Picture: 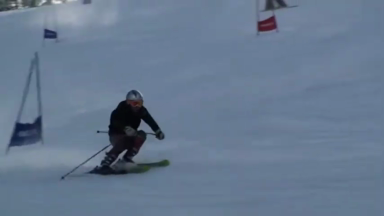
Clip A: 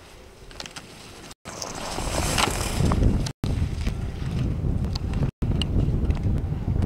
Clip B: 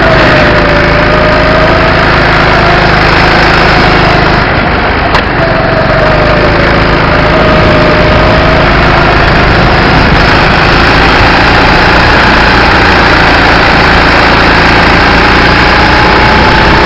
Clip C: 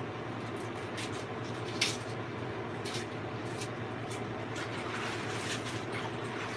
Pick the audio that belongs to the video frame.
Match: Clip A